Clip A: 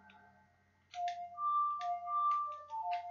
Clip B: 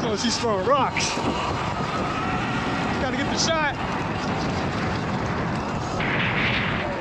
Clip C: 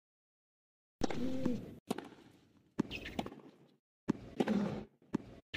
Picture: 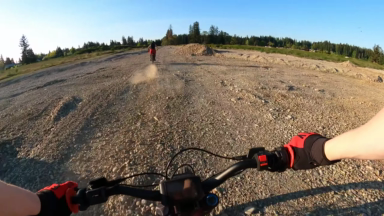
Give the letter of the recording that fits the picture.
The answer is B